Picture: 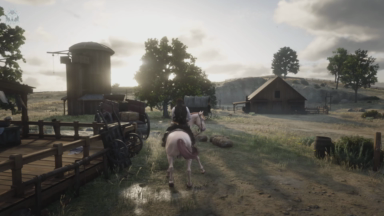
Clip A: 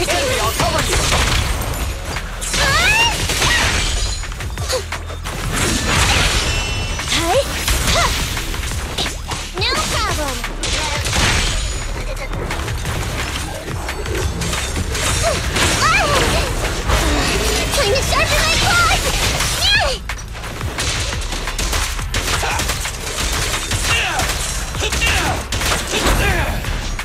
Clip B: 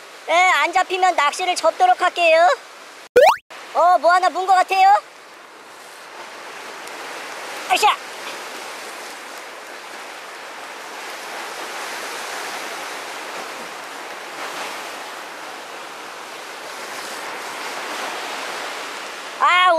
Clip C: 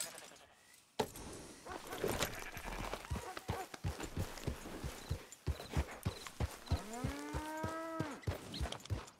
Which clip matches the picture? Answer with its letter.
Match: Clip C